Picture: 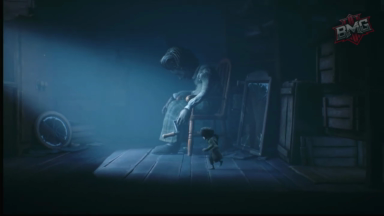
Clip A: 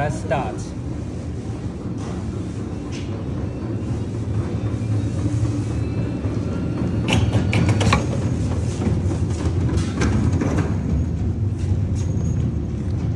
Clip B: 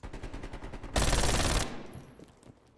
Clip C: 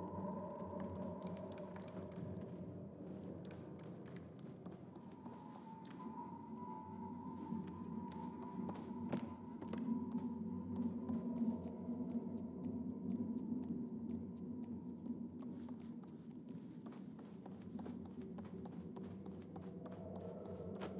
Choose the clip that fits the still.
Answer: C